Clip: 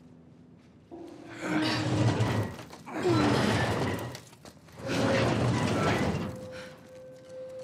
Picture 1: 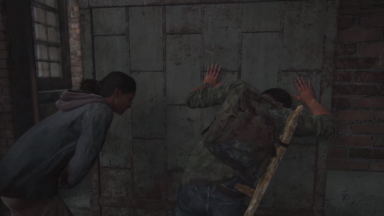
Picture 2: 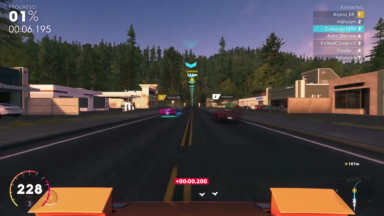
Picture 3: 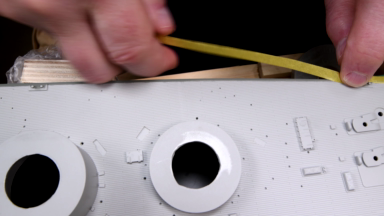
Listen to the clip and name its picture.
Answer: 1